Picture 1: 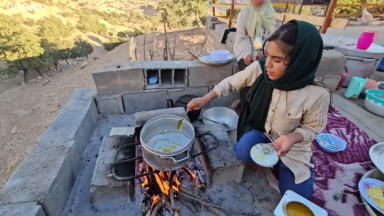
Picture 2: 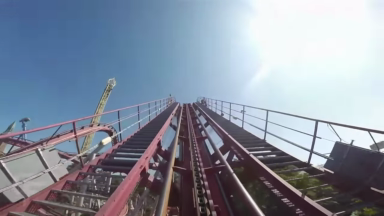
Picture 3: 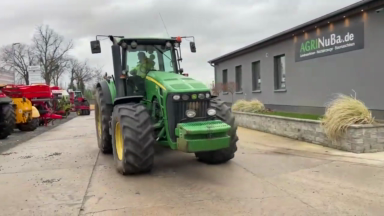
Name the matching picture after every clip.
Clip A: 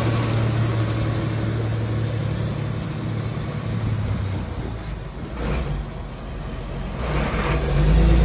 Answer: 3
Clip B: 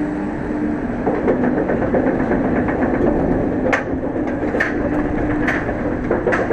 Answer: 2